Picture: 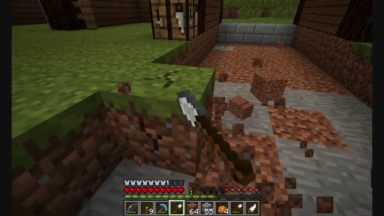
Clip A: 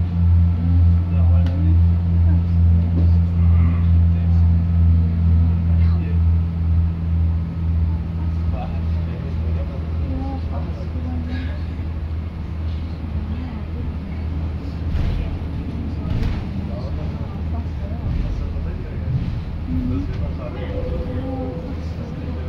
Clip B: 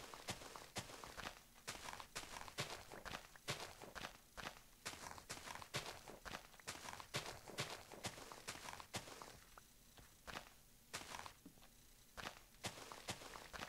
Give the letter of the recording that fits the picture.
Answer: B